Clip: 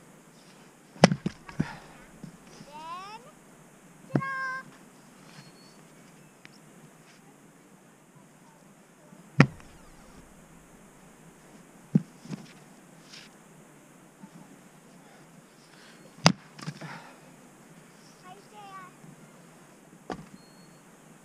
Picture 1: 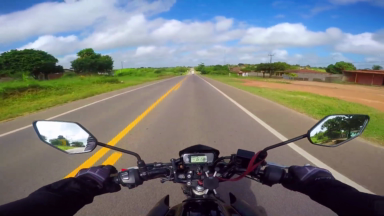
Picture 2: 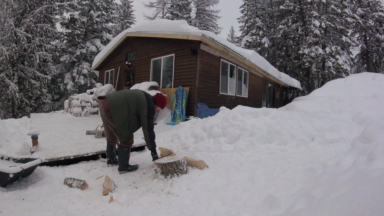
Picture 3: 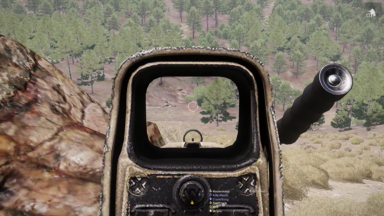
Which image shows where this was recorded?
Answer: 2